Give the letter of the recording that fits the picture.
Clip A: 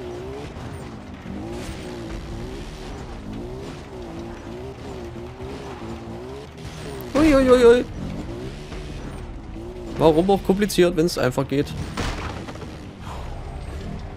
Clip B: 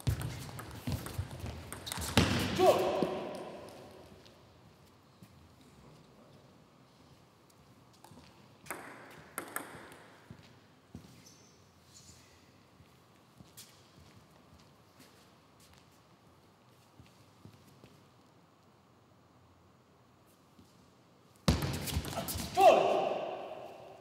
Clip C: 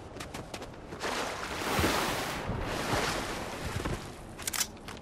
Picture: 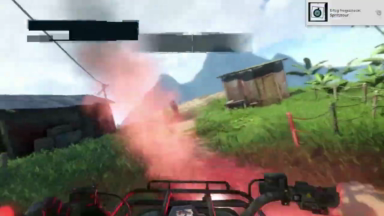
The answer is A